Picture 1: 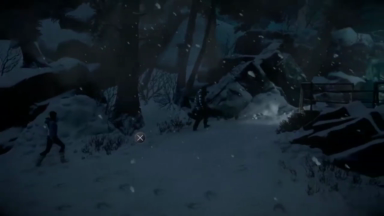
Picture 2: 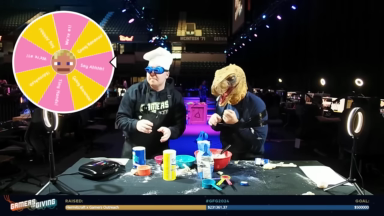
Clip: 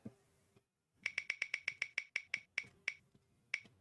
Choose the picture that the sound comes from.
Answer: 2